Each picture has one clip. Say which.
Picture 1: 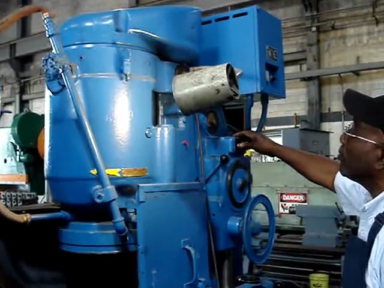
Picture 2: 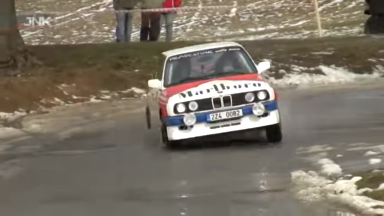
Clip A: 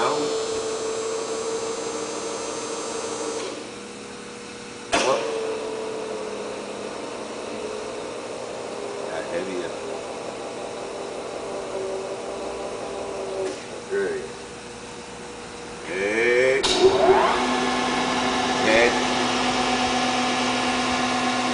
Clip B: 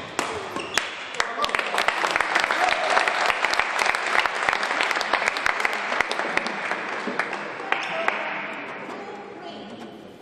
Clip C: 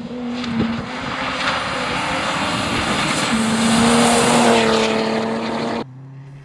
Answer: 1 A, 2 C